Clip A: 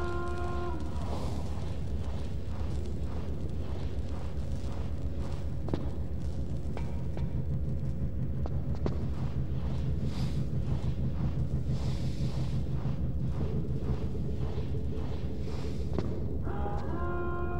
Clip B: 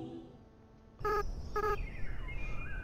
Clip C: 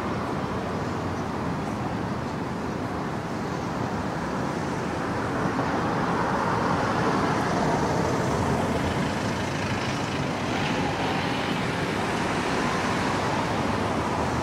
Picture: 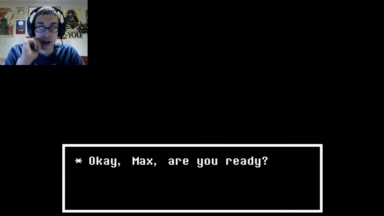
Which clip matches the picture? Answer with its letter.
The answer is B